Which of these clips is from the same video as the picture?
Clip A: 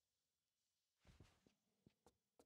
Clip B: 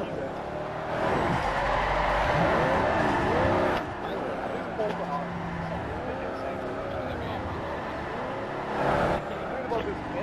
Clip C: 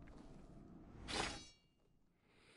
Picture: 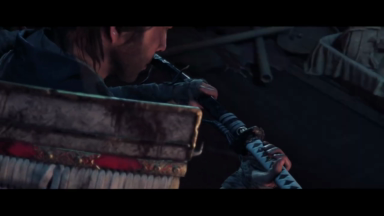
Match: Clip C